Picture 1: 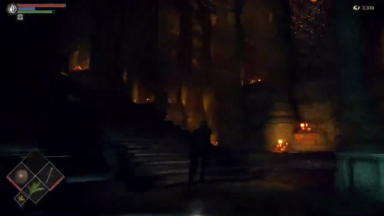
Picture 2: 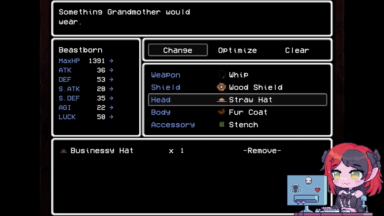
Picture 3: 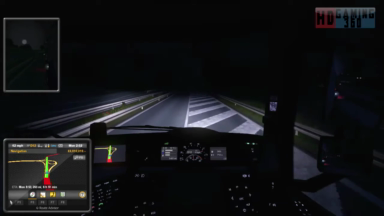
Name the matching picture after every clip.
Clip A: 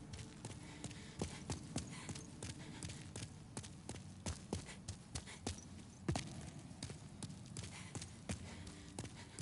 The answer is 1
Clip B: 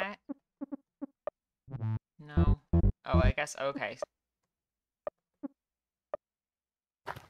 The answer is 2